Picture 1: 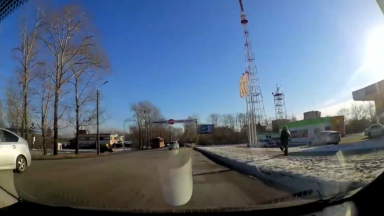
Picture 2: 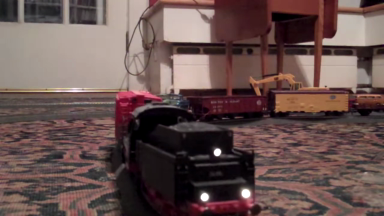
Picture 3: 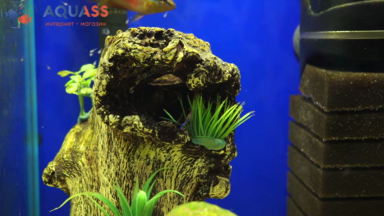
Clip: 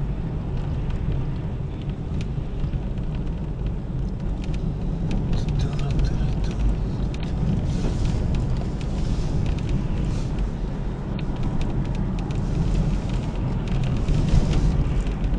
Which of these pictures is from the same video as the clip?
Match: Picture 1